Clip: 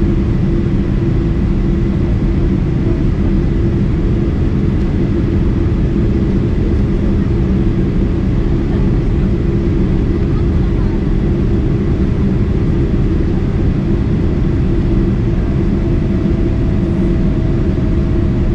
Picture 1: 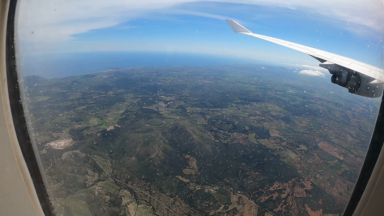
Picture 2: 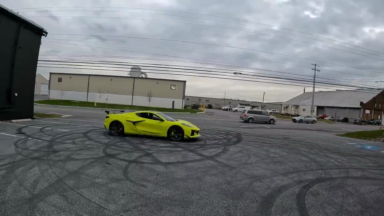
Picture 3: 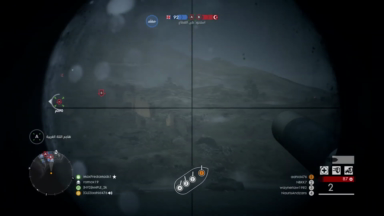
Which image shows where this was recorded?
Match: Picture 1